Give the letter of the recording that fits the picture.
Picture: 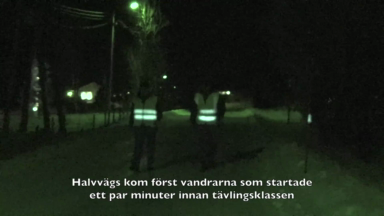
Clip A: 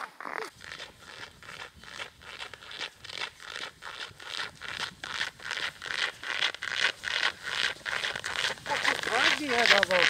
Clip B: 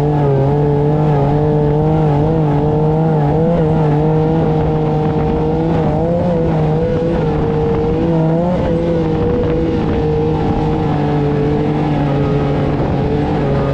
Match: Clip A